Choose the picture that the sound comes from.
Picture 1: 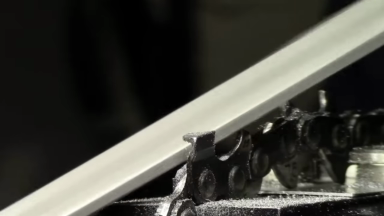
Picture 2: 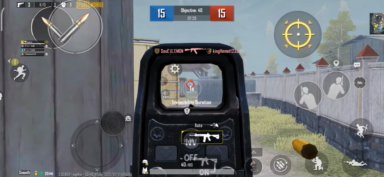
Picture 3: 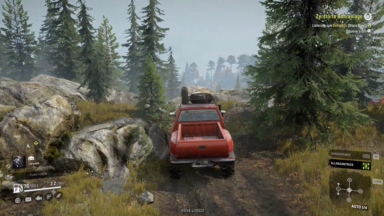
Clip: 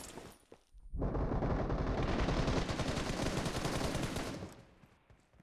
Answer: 2